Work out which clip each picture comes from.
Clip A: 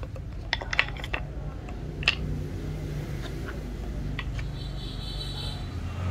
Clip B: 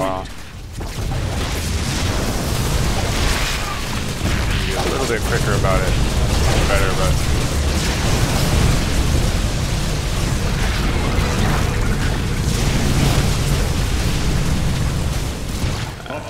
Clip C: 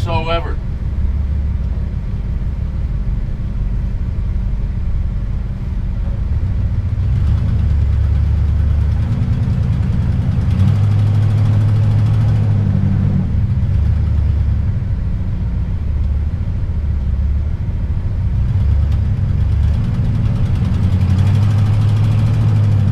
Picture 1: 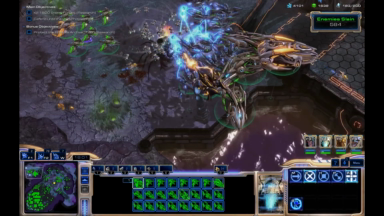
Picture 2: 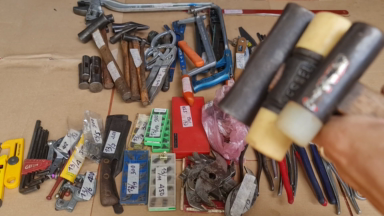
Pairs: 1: B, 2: A